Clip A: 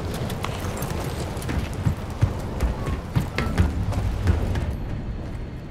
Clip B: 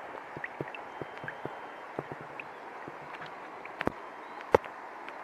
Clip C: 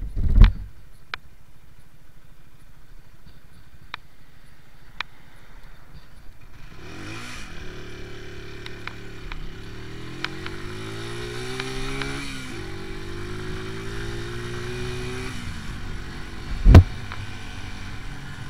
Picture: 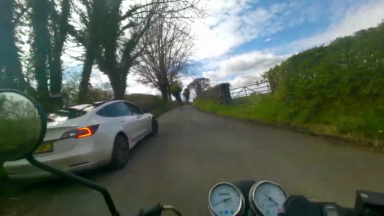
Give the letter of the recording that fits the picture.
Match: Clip C